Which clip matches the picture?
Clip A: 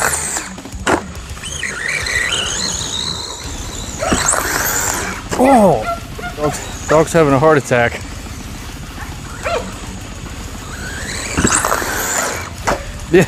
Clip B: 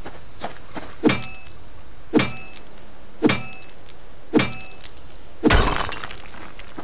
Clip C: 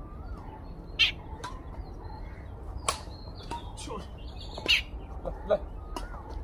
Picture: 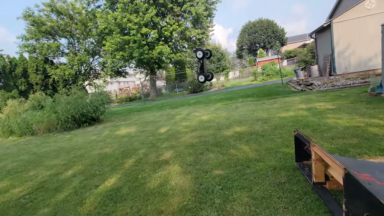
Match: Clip A